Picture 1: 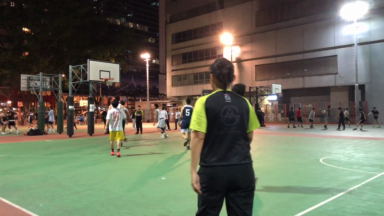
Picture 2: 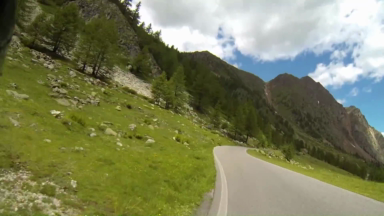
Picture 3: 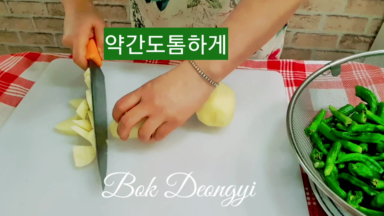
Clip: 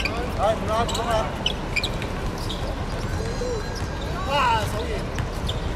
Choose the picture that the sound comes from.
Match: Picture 1